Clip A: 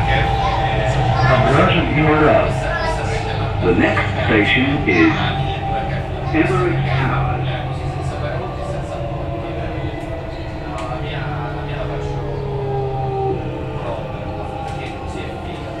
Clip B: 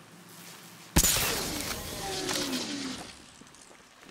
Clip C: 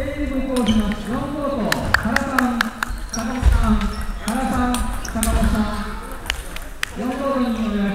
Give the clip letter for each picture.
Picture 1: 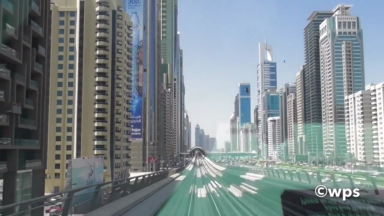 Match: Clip A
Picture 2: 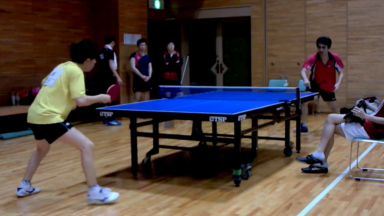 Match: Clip C